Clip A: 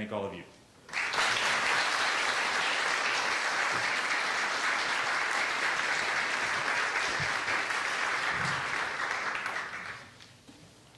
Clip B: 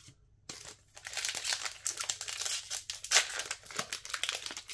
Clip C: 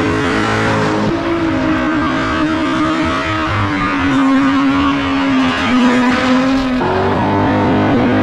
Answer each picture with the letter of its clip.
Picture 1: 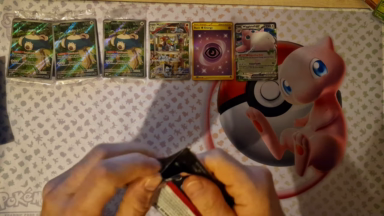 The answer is B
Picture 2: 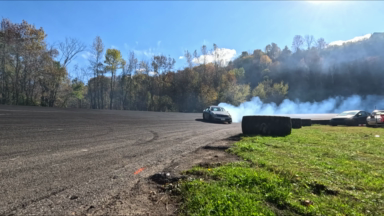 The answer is C